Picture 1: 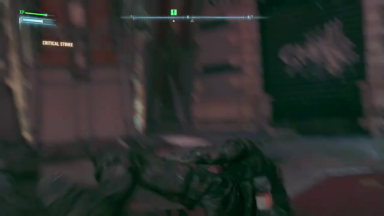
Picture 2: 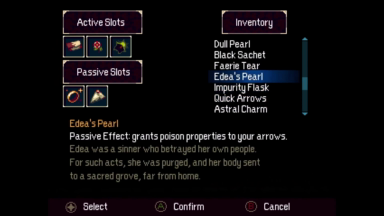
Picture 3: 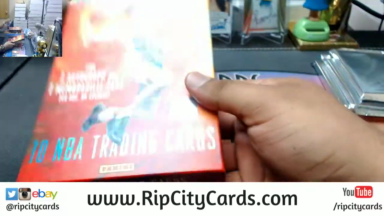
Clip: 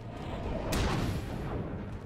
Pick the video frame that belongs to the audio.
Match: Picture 1